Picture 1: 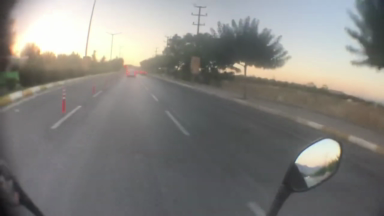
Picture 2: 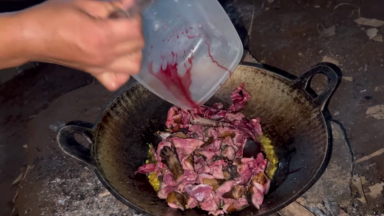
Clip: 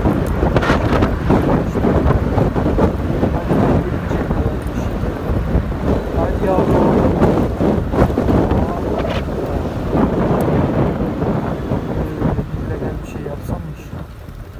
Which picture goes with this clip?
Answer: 1